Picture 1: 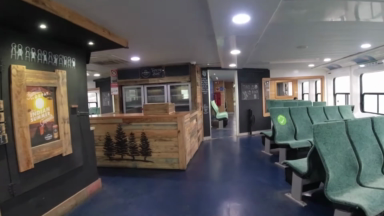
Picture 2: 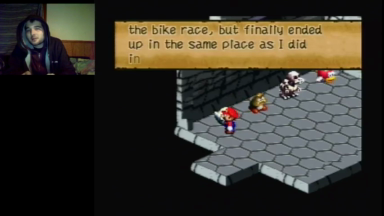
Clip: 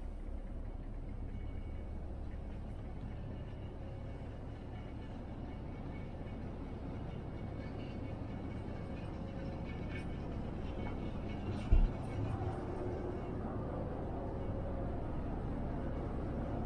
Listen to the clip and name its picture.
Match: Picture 1